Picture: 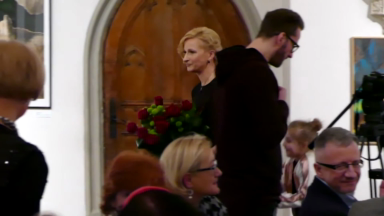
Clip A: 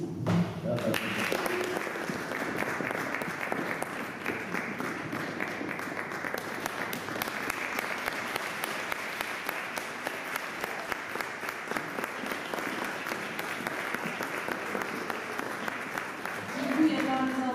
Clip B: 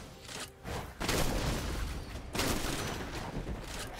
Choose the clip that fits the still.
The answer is A